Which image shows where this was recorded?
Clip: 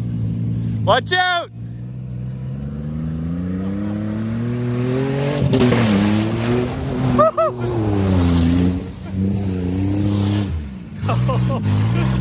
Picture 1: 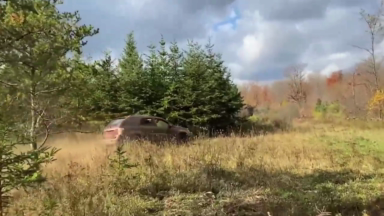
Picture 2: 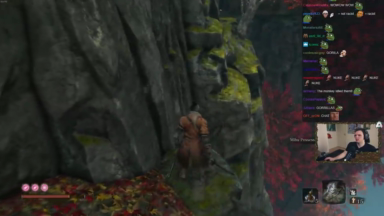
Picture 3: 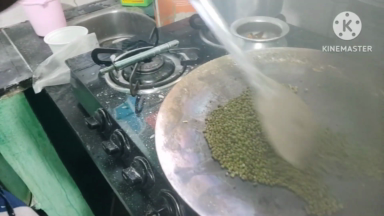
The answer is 1